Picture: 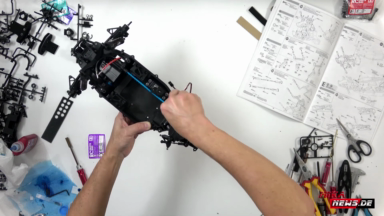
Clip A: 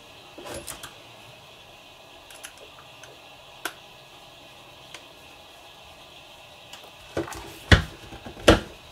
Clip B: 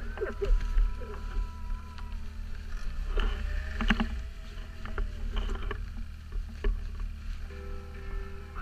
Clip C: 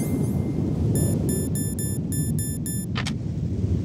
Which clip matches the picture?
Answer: A